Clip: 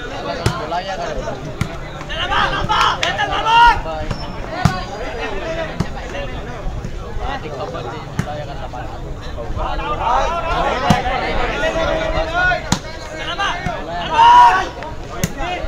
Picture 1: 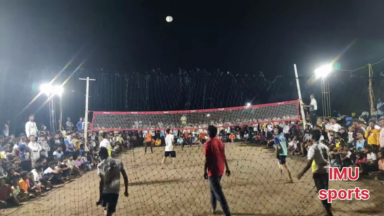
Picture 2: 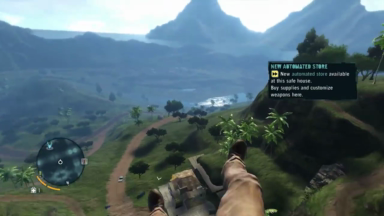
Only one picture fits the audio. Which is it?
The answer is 1